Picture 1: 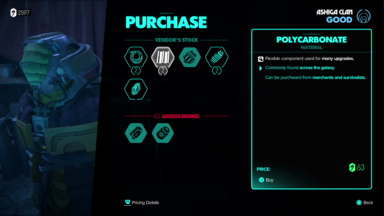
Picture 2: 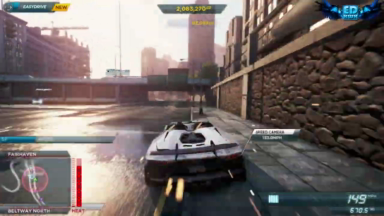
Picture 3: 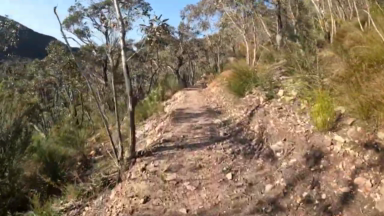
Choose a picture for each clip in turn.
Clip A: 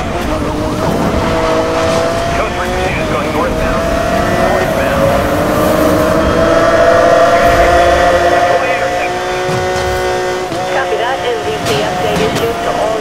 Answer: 2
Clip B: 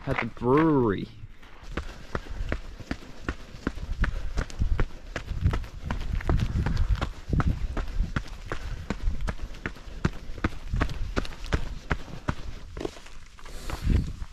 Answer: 3